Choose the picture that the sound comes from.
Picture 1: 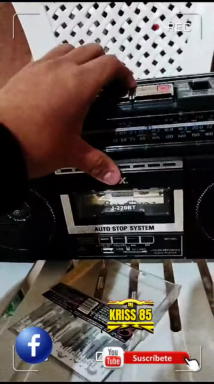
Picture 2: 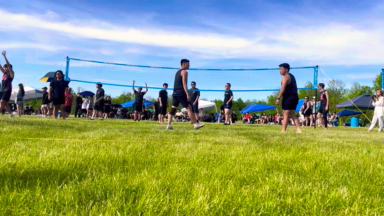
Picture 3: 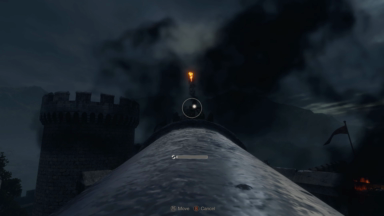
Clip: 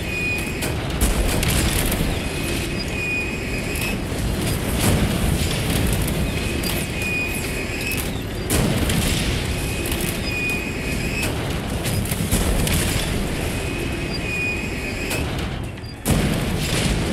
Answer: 3